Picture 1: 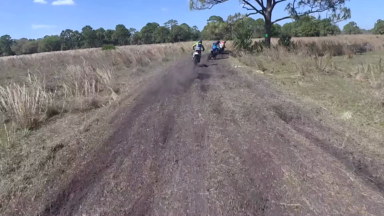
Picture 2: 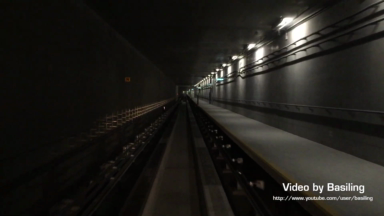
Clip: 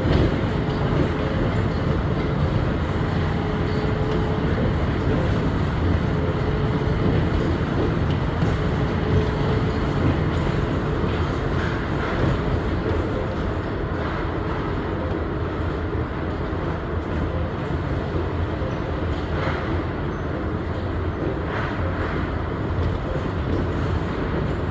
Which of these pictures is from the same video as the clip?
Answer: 2